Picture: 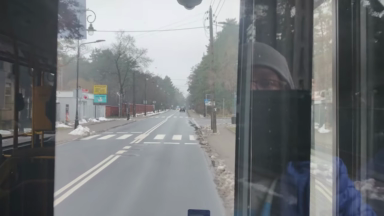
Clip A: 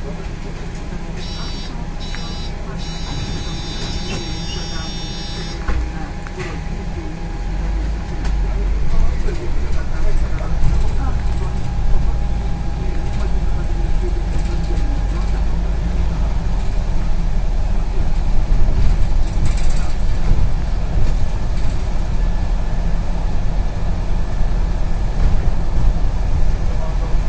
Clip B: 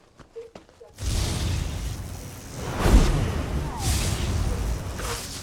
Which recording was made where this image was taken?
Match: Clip A